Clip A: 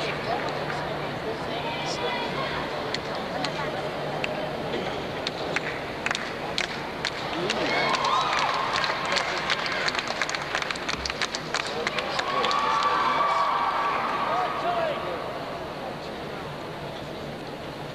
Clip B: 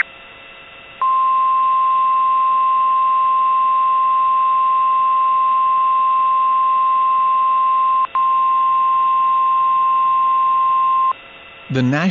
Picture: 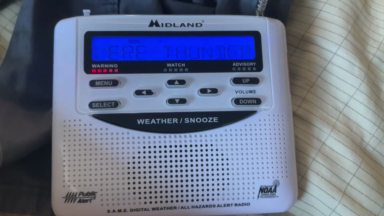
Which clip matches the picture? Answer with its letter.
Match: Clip B